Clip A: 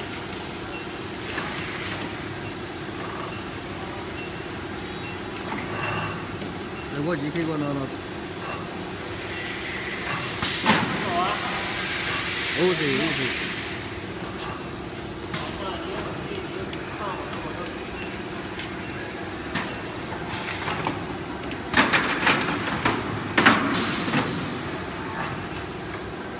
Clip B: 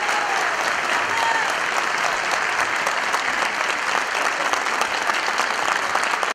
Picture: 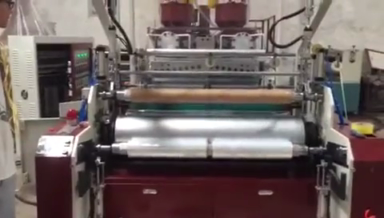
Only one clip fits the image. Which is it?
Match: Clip A